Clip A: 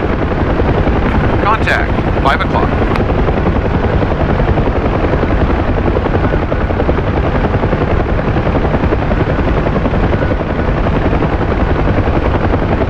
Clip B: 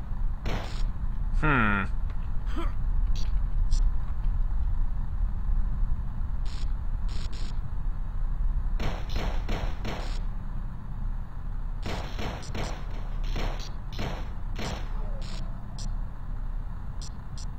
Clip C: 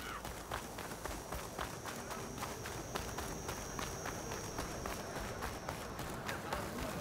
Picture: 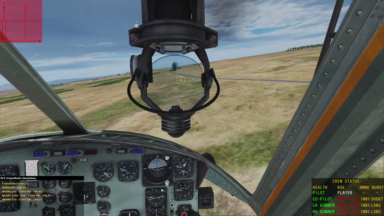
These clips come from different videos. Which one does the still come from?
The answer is A